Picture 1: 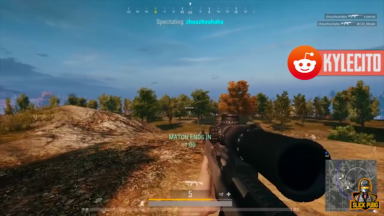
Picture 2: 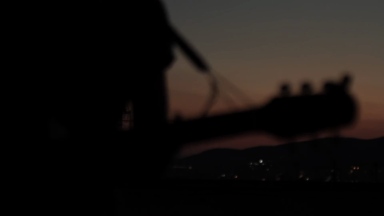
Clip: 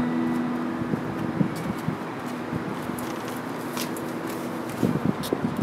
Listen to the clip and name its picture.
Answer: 2